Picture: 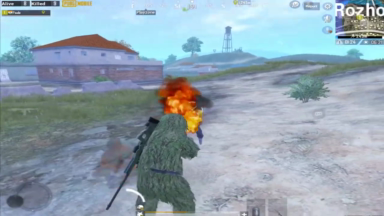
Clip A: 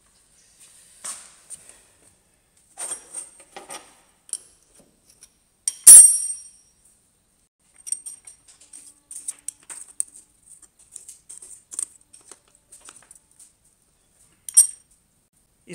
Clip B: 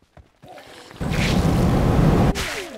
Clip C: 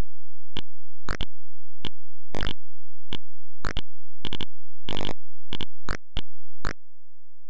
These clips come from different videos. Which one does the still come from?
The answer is B